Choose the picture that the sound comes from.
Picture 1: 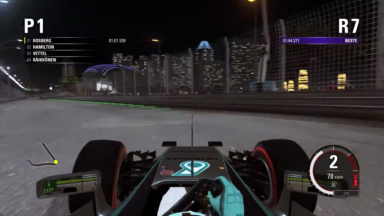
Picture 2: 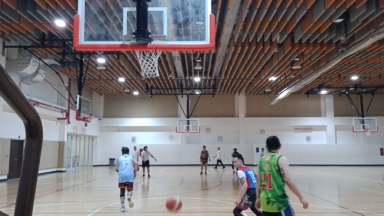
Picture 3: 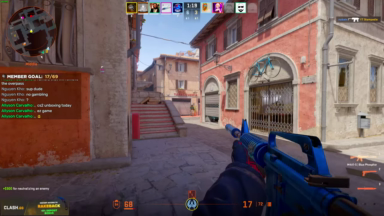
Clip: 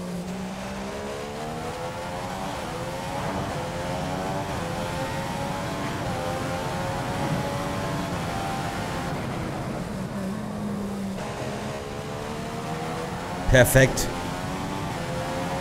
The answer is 1